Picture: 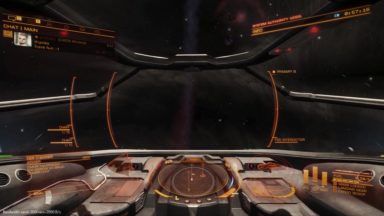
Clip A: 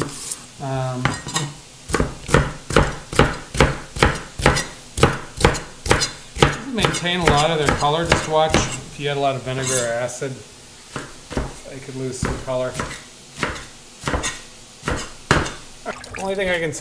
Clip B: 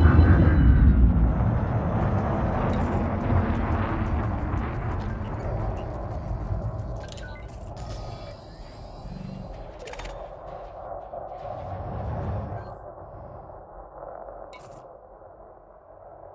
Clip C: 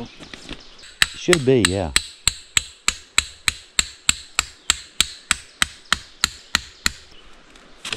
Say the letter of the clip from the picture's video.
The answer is B